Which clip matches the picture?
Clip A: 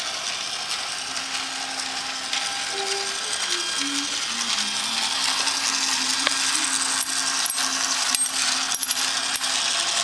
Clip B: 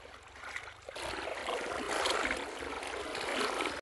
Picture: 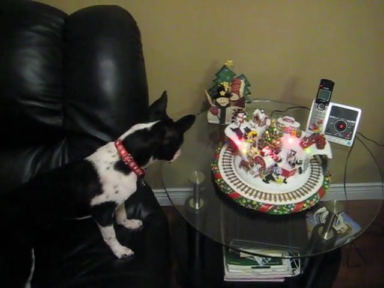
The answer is A